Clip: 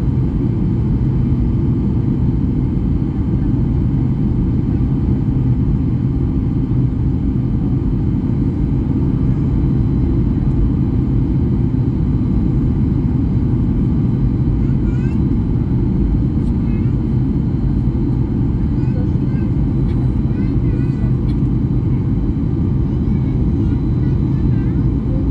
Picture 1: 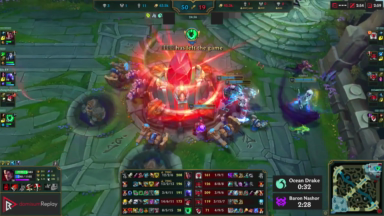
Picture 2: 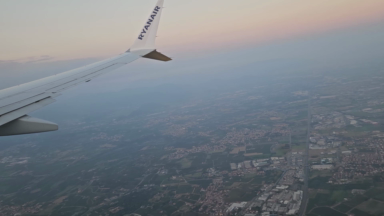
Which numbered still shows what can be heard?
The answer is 2